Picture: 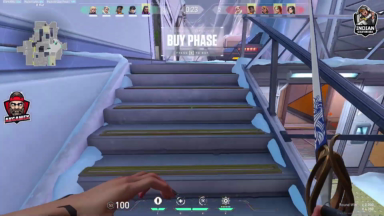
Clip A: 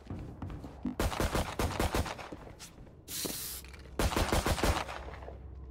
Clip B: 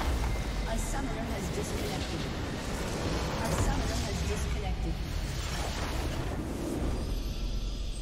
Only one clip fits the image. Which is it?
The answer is A